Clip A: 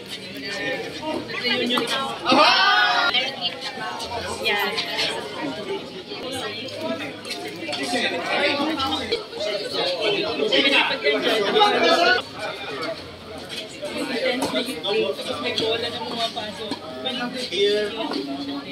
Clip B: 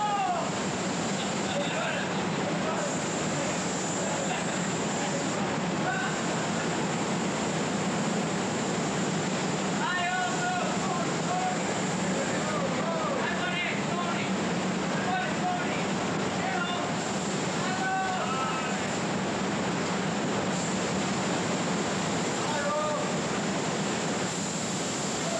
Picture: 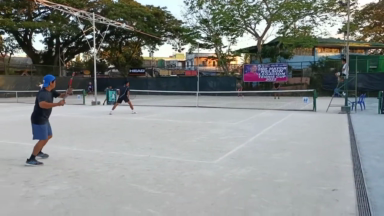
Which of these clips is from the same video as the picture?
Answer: A